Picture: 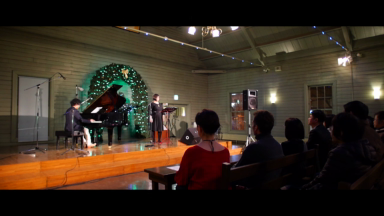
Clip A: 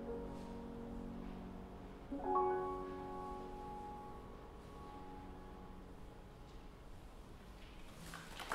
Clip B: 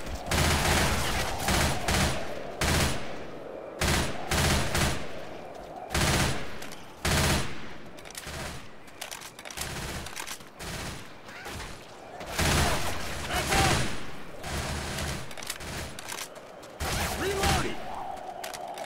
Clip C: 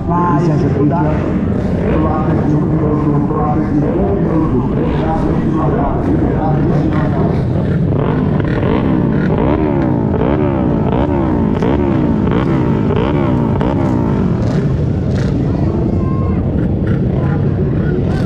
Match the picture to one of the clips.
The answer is A